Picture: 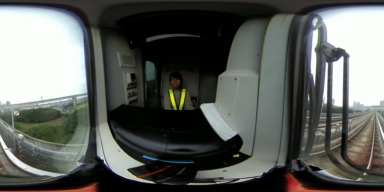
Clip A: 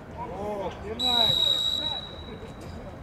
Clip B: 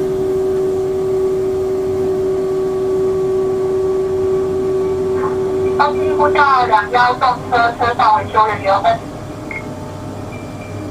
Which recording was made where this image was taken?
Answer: B